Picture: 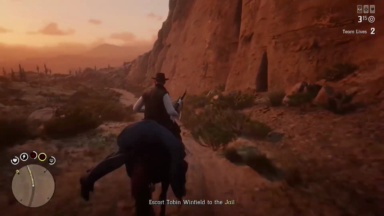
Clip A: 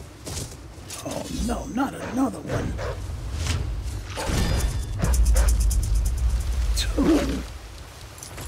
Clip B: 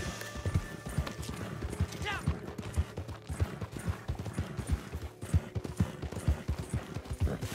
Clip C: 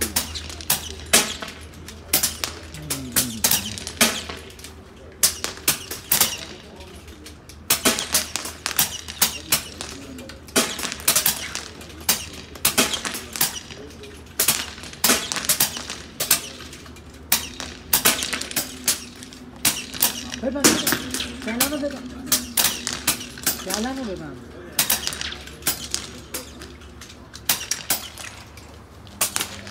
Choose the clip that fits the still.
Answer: B